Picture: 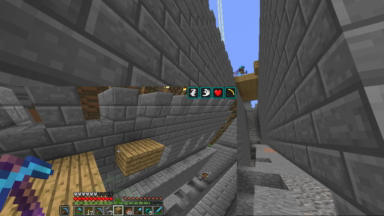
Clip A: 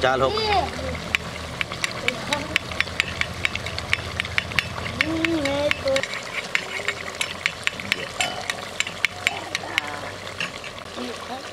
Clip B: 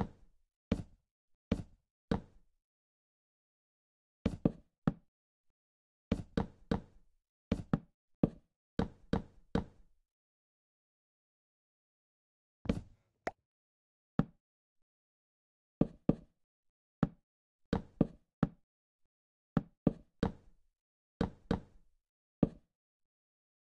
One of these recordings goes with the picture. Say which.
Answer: B